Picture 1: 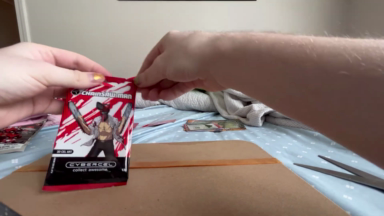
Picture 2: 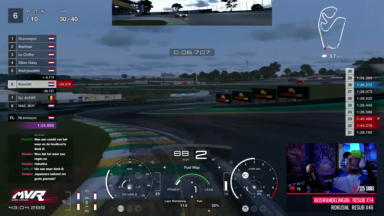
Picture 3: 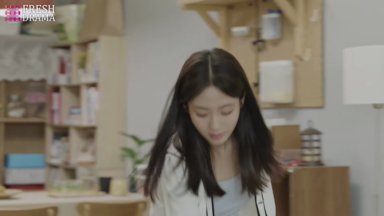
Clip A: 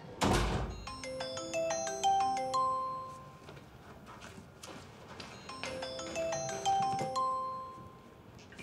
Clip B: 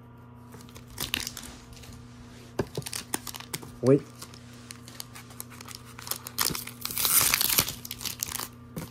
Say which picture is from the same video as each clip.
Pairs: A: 3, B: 1